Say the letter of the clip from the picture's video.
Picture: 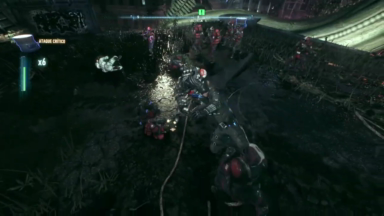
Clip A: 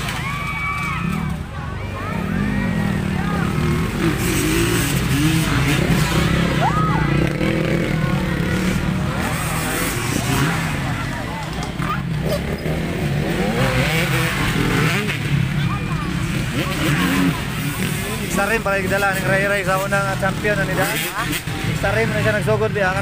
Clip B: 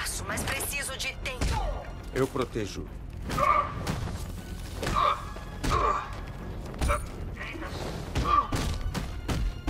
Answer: B